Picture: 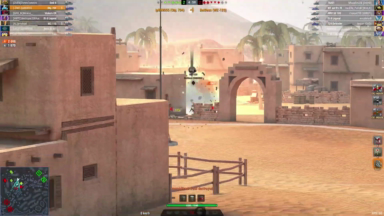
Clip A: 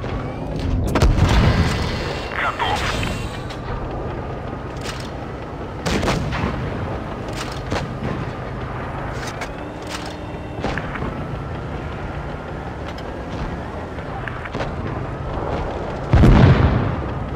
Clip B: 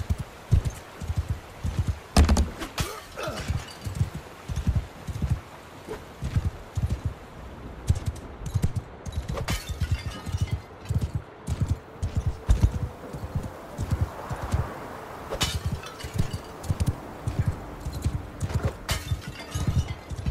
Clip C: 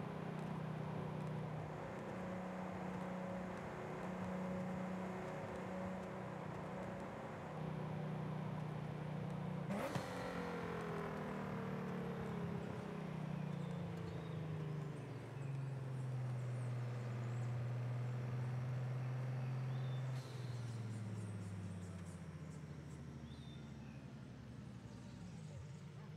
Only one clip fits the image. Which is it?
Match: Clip A